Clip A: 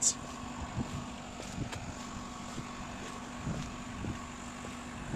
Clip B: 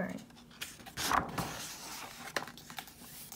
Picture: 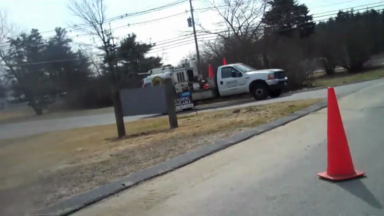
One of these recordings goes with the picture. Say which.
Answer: A